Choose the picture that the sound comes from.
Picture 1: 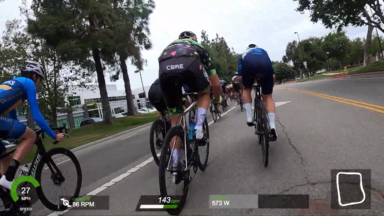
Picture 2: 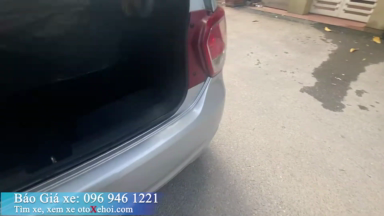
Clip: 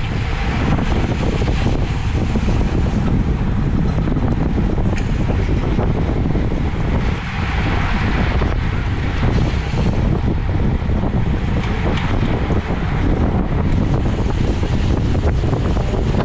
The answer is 1